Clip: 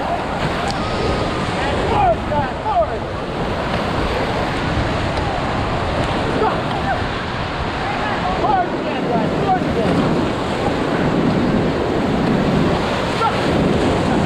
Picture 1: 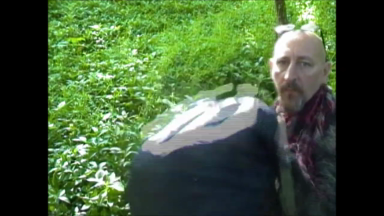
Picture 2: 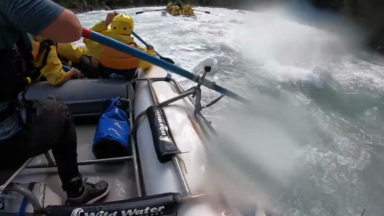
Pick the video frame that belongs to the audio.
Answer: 2